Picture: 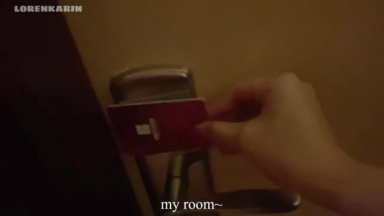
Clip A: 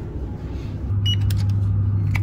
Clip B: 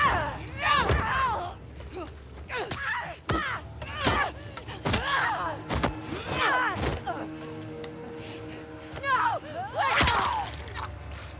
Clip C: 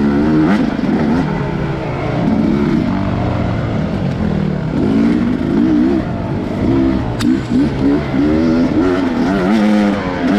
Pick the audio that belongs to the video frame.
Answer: A